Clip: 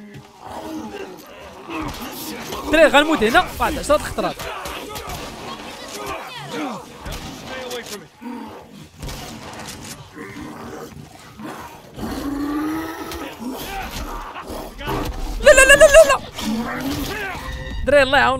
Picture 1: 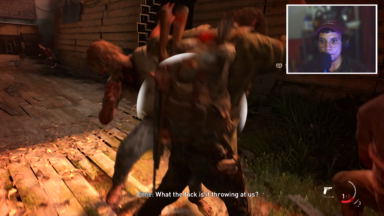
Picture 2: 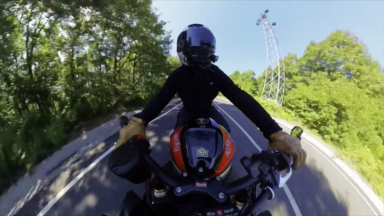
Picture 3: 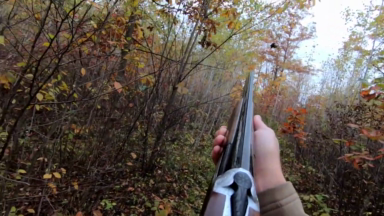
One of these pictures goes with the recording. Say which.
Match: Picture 1